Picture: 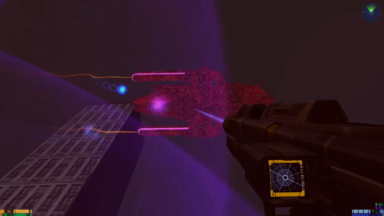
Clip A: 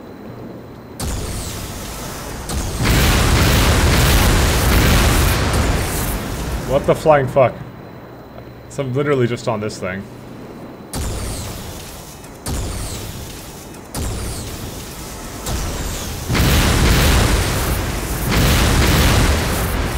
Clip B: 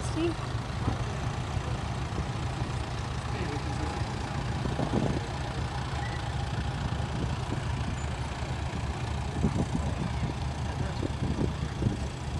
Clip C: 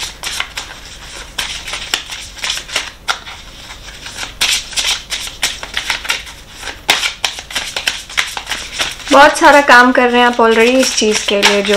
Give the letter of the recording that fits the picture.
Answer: A